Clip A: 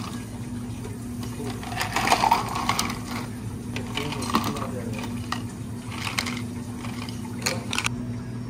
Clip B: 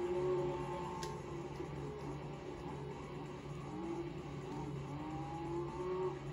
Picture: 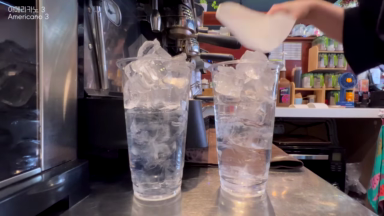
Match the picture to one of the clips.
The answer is A